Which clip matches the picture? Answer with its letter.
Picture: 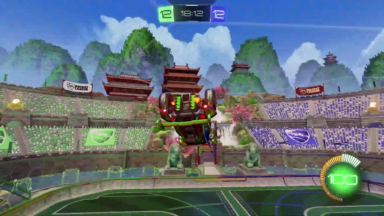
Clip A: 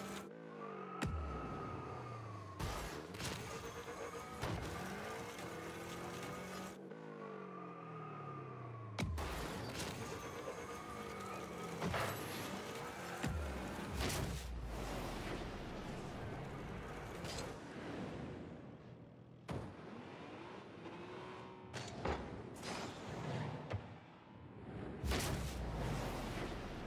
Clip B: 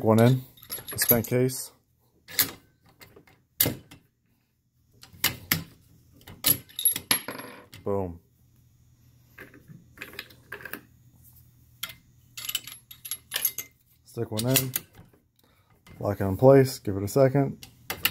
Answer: A